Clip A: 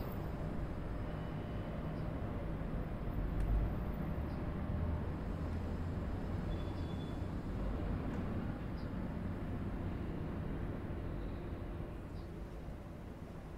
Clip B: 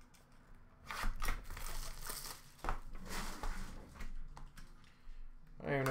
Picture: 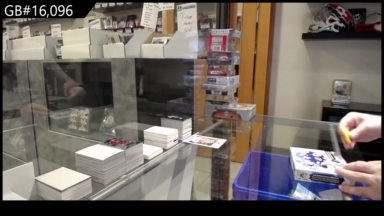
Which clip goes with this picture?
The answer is B